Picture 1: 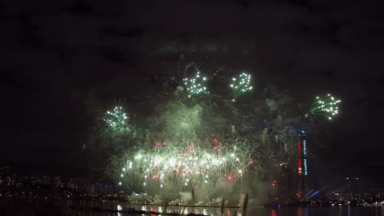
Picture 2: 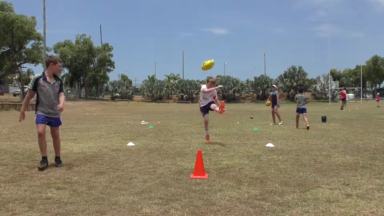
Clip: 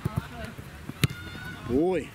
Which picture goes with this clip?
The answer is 2